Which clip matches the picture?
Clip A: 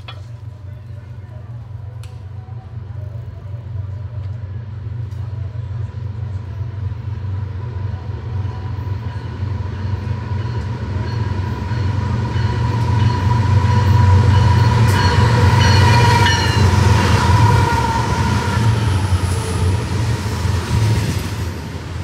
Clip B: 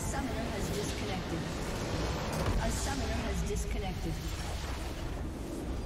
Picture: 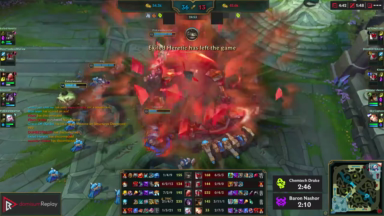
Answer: B